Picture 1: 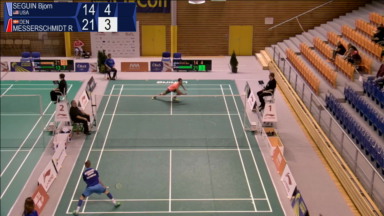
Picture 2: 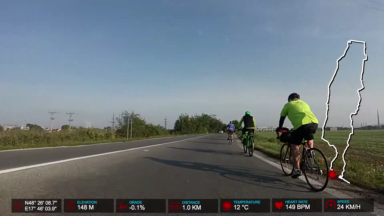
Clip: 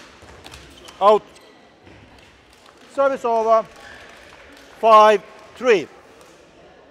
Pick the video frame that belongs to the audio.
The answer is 1